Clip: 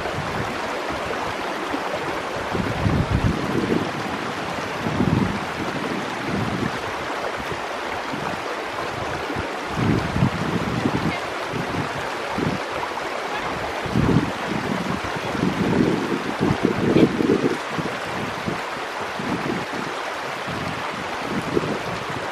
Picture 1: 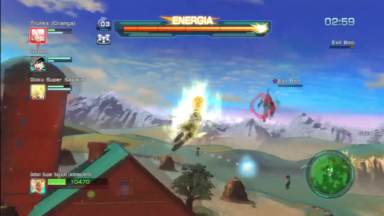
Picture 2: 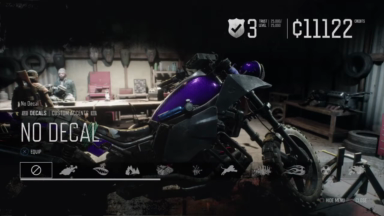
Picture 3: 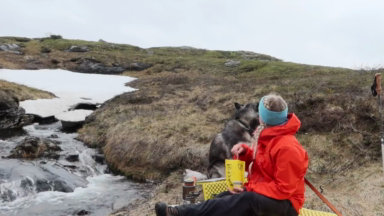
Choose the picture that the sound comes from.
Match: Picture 3